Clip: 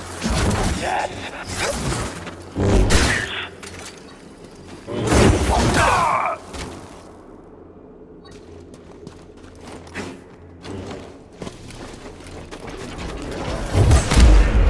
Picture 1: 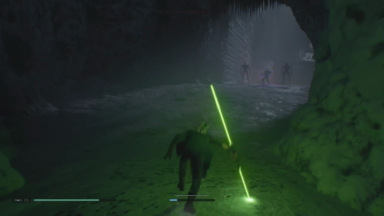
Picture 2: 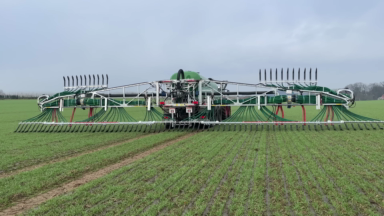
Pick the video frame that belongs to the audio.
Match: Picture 1